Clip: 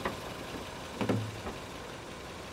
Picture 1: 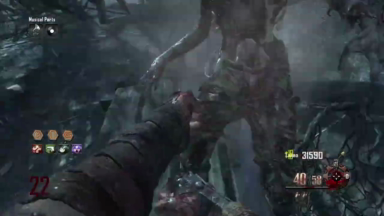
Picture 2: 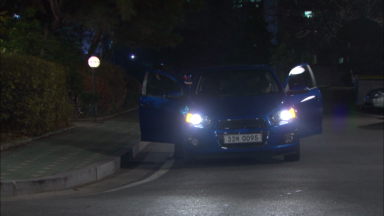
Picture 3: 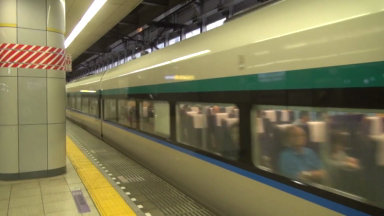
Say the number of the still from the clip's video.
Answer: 2